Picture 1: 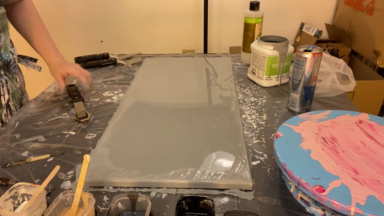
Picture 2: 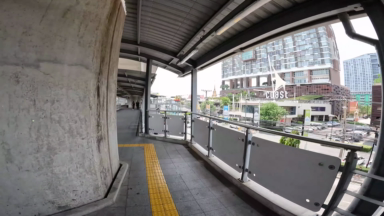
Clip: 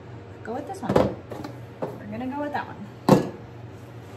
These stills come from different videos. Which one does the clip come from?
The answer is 1